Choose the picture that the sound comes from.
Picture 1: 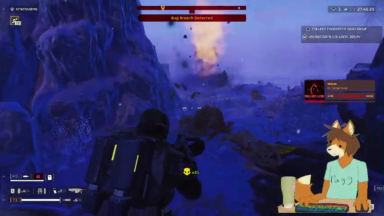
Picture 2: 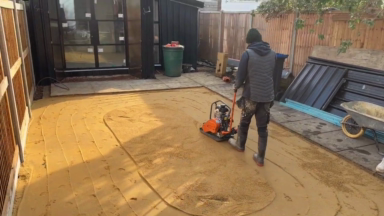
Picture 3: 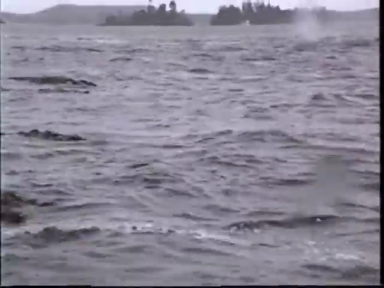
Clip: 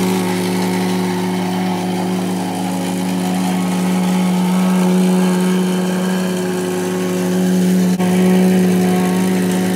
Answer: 2